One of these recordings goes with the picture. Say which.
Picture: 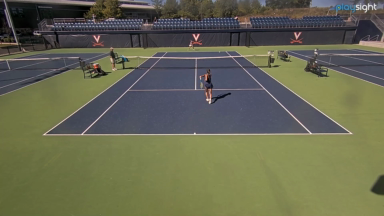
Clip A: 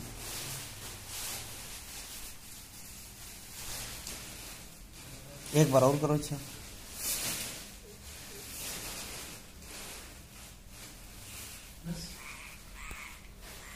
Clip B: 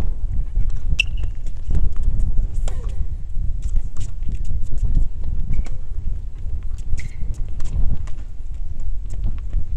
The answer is B